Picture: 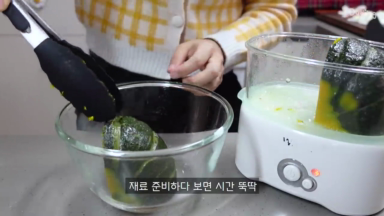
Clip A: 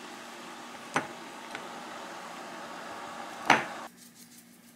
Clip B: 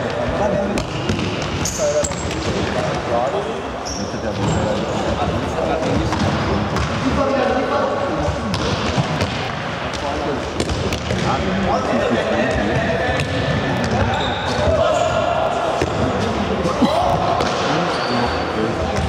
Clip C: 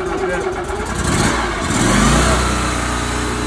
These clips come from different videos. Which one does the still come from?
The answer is A